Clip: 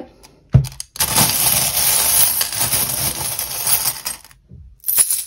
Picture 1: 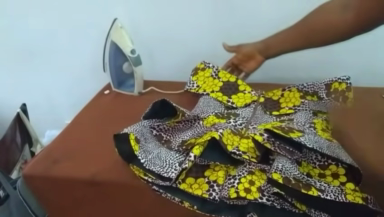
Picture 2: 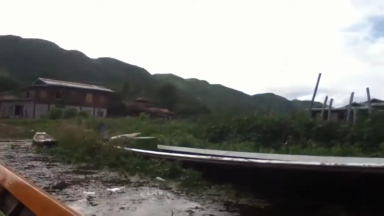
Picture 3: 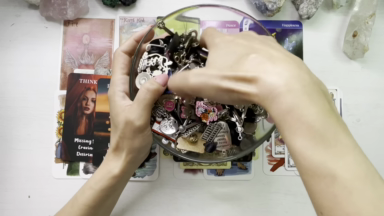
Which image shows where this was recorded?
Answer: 3